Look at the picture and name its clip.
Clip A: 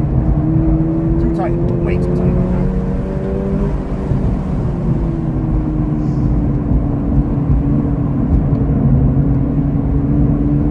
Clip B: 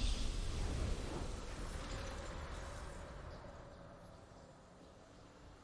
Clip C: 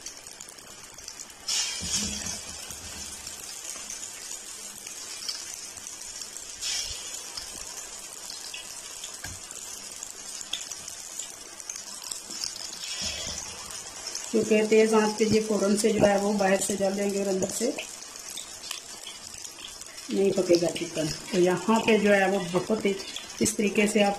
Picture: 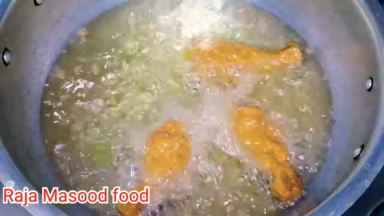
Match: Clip C